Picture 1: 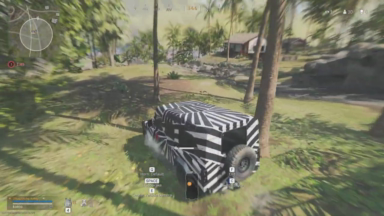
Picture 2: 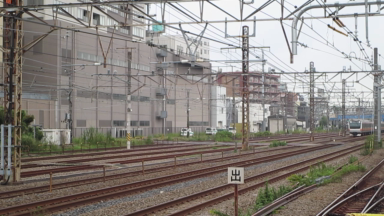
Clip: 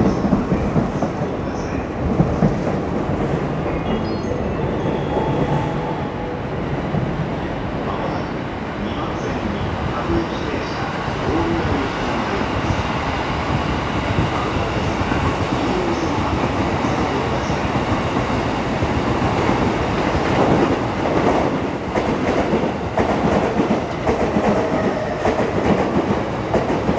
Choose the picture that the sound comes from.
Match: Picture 2